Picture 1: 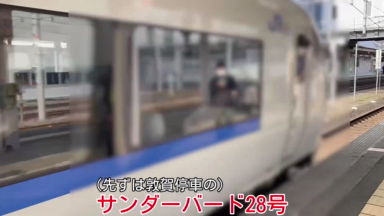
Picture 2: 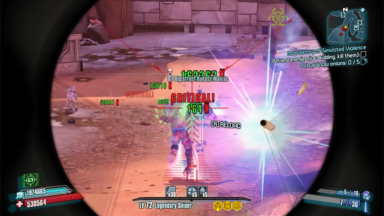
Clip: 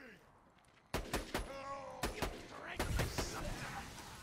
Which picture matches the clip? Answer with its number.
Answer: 2